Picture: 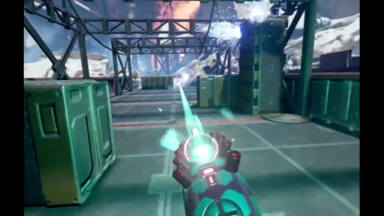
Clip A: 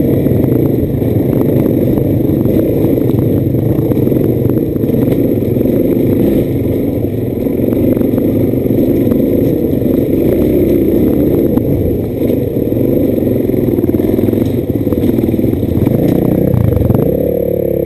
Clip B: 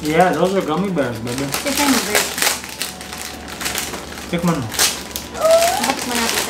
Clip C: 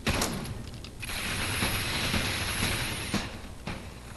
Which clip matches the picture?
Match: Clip C